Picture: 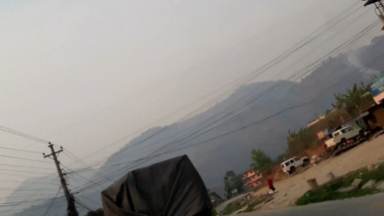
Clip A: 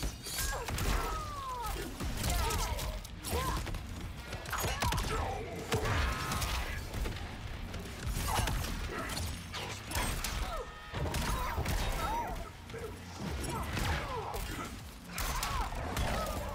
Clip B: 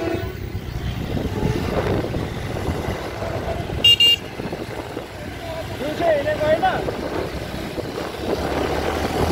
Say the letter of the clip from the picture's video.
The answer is B